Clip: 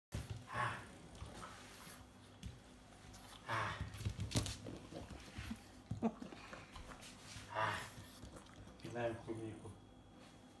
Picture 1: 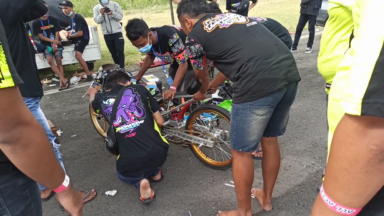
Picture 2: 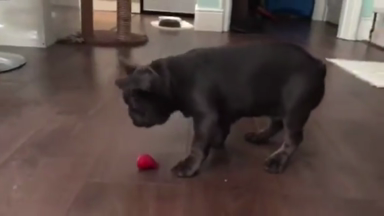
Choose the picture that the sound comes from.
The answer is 2